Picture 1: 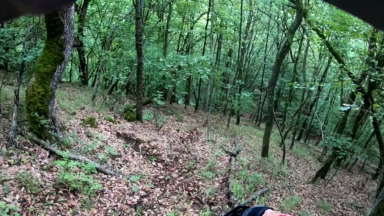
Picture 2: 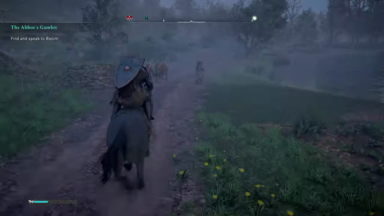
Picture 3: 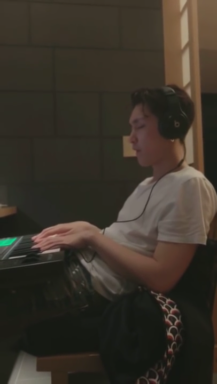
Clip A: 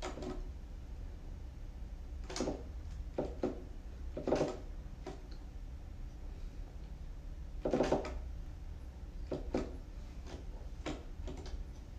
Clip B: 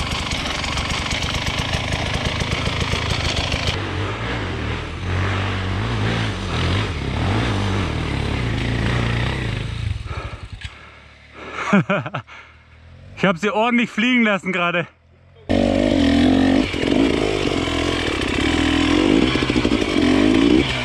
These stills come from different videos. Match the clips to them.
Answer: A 3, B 1